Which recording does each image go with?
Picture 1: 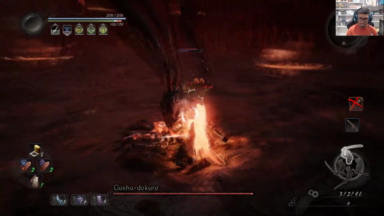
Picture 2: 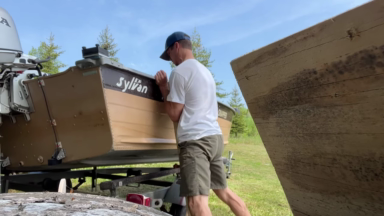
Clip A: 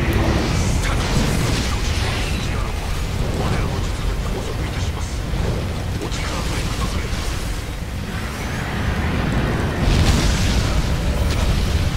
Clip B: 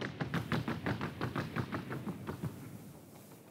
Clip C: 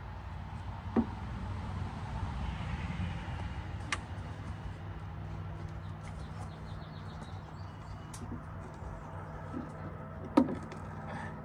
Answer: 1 A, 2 C